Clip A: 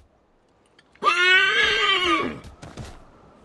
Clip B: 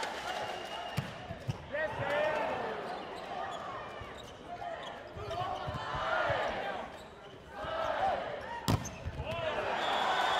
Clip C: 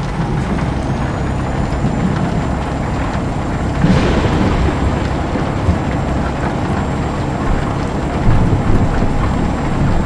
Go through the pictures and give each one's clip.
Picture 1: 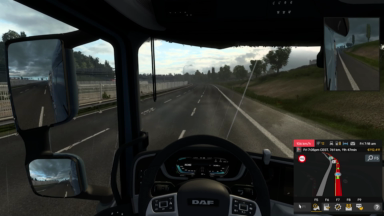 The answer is C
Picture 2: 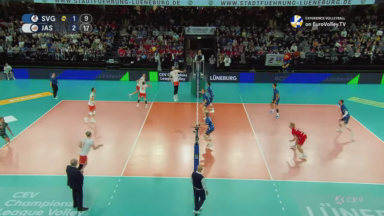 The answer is B